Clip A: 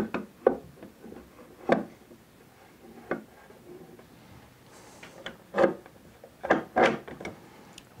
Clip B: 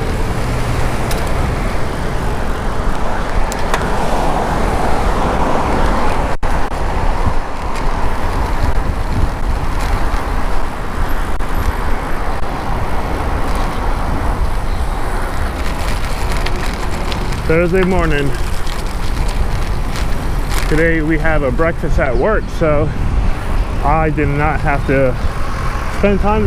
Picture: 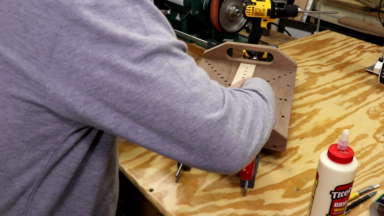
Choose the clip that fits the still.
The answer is A